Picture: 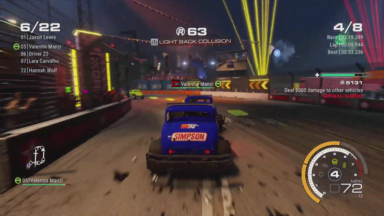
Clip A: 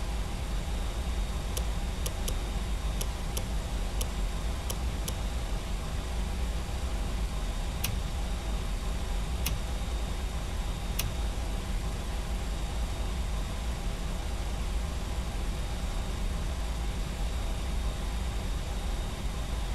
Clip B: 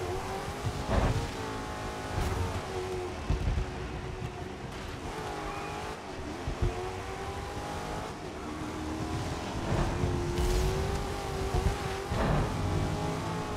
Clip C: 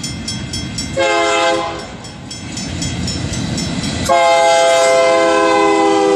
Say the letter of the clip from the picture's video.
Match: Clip B